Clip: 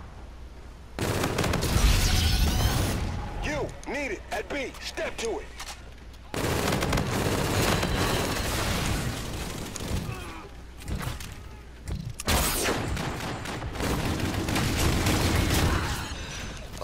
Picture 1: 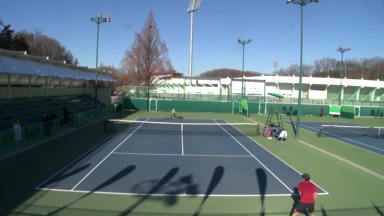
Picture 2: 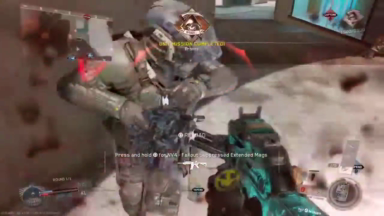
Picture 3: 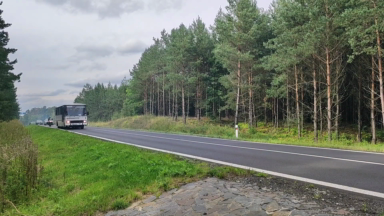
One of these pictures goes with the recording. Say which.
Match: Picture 2